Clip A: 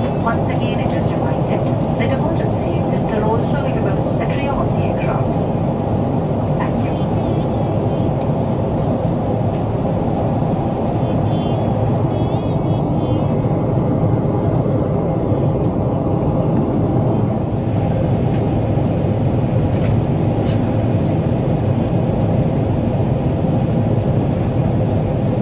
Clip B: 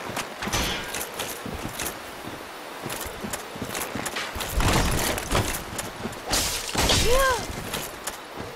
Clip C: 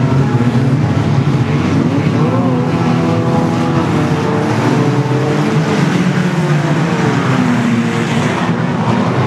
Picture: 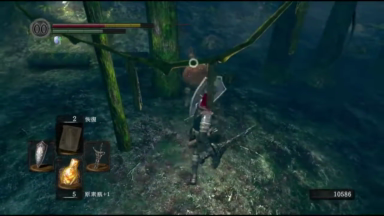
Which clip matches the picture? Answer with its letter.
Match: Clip B